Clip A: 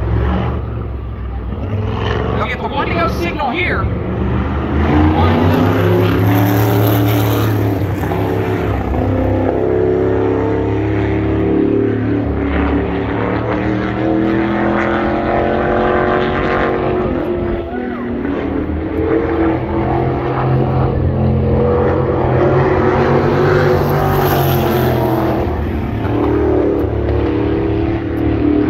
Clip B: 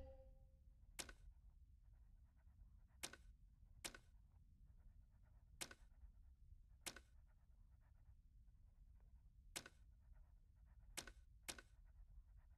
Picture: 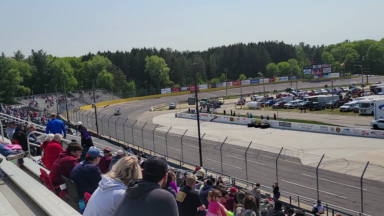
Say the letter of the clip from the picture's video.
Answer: A